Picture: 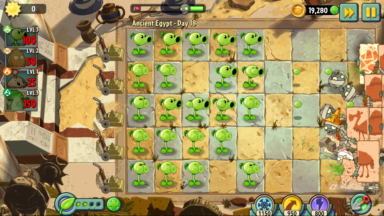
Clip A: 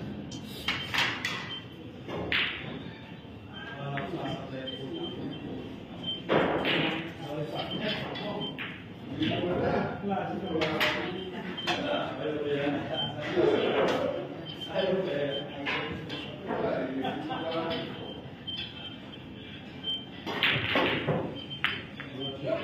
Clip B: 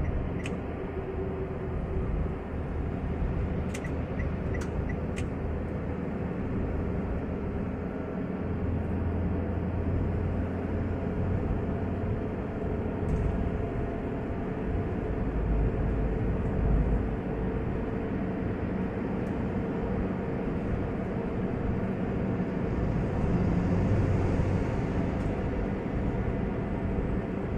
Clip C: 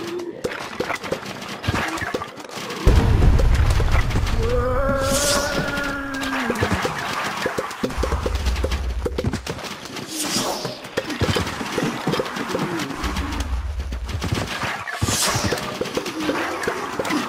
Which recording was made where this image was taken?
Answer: C